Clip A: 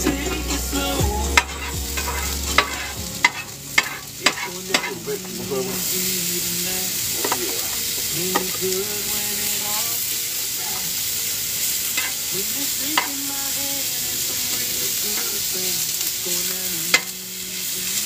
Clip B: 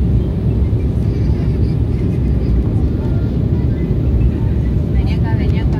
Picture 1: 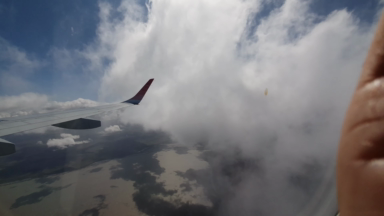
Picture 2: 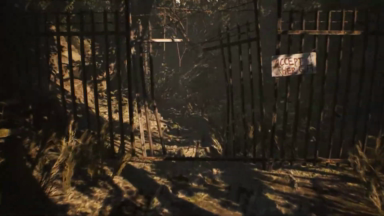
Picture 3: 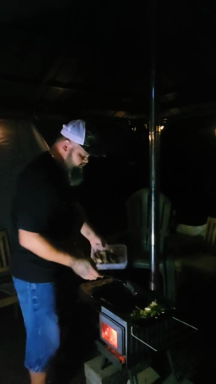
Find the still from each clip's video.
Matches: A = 3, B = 1